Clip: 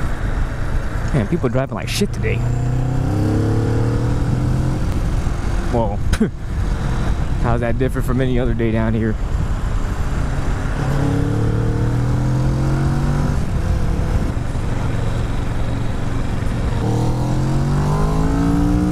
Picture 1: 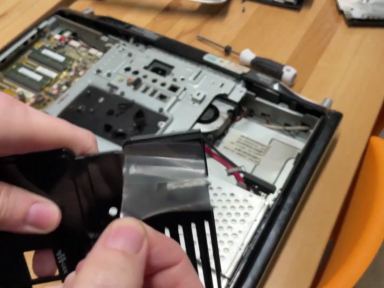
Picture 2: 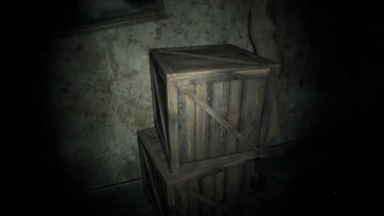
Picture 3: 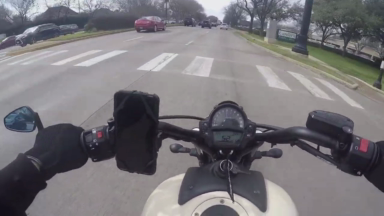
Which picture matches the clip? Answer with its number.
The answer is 3